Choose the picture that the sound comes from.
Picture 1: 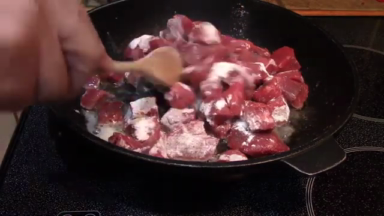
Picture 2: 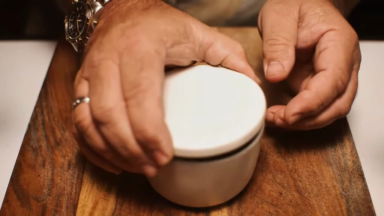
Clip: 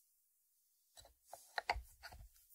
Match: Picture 2